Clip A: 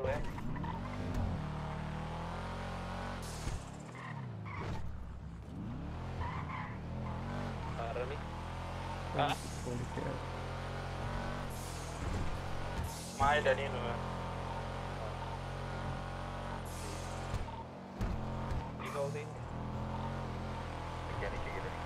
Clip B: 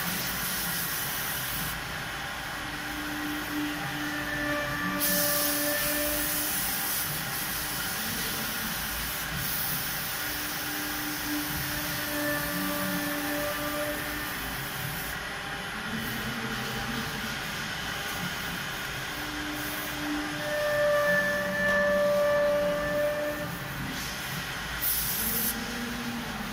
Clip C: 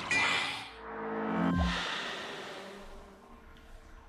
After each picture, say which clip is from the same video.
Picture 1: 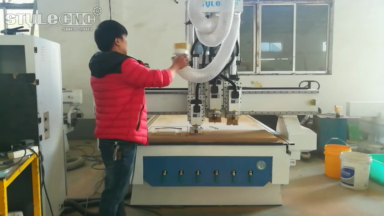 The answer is B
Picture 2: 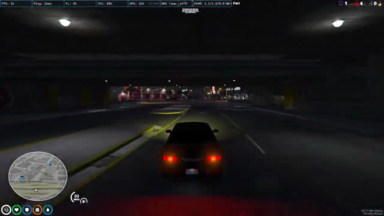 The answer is A